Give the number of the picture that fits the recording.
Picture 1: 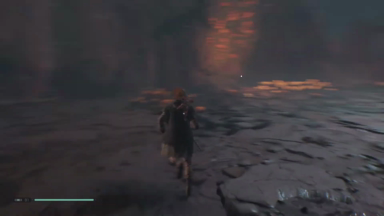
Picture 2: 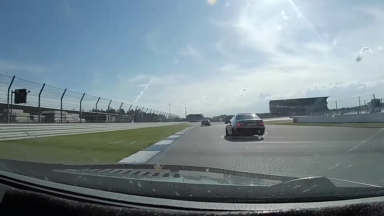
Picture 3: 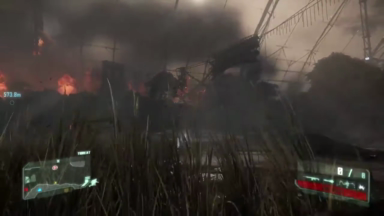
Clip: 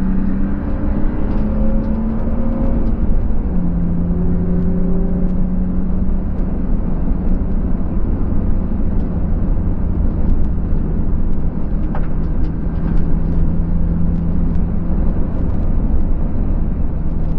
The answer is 2